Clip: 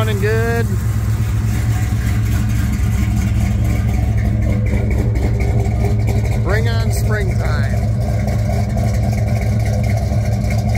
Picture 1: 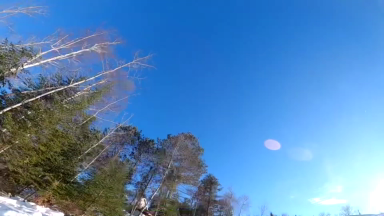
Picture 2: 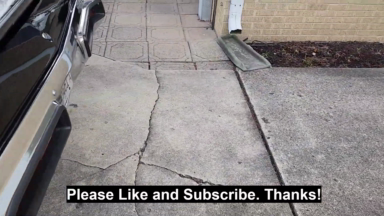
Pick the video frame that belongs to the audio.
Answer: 2